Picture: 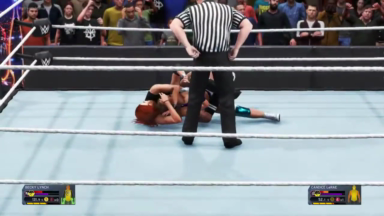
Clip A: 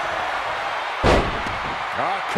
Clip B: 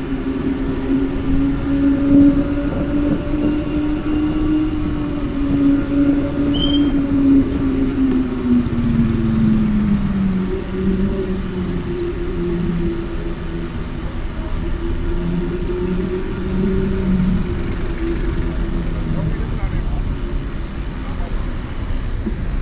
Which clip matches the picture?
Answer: A